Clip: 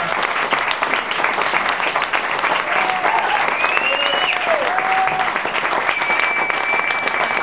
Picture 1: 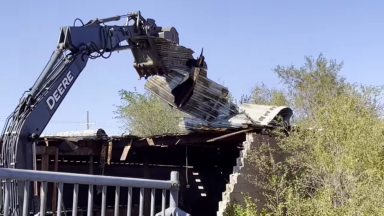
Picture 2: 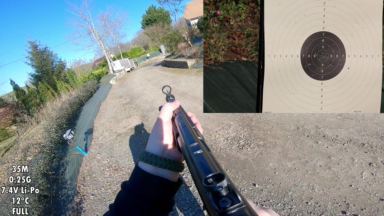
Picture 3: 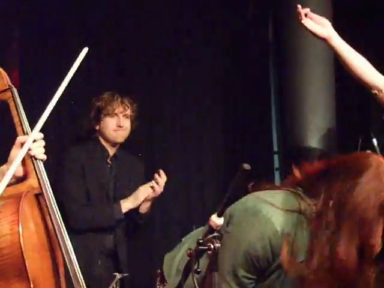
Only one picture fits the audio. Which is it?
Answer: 3